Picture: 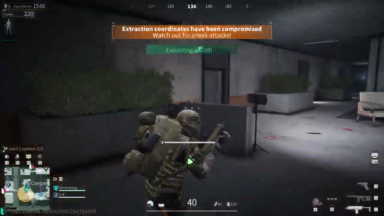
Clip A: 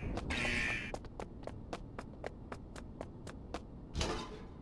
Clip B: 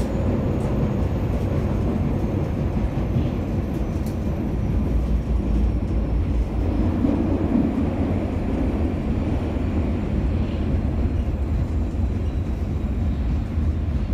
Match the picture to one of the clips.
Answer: A